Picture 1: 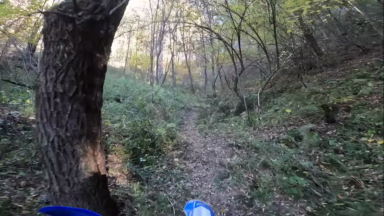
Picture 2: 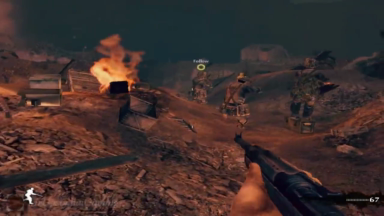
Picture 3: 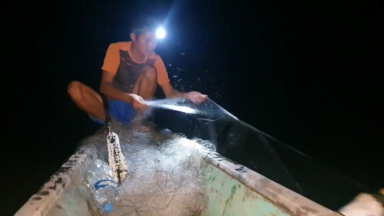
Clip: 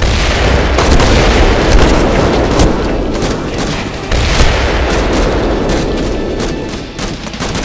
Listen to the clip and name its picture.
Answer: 2